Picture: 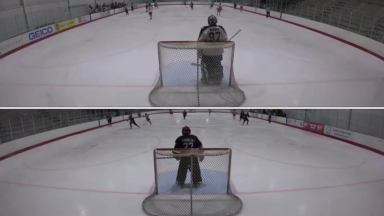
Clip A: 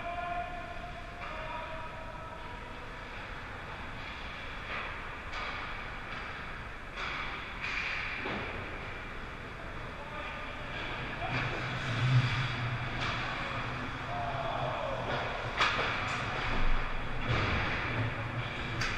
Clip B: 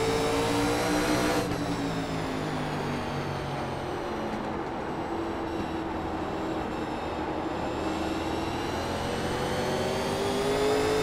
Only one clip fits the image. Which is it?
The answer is A